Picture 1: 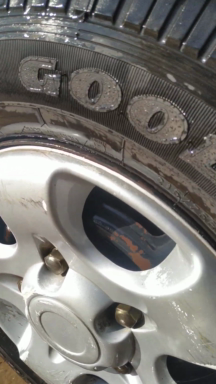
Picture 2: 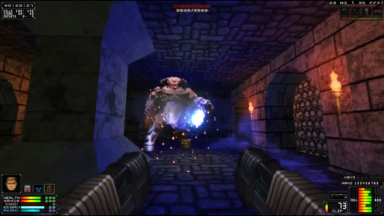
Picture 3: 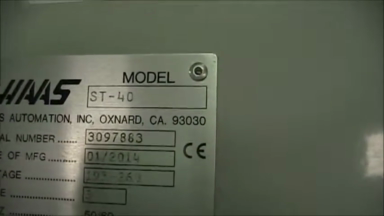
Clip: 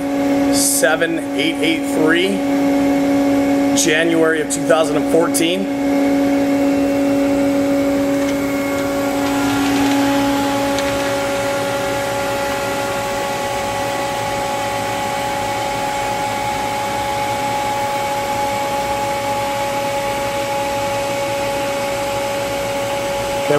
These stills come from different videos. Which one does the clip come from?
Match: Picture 3